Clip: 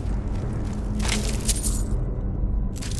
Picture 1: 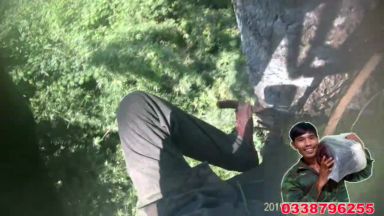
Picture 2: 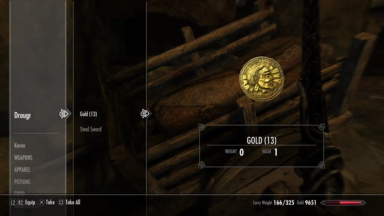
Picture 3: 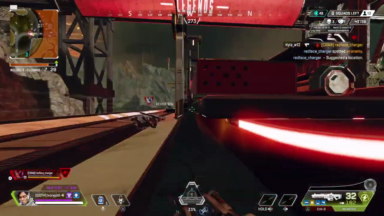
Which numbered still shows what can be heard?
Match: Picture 2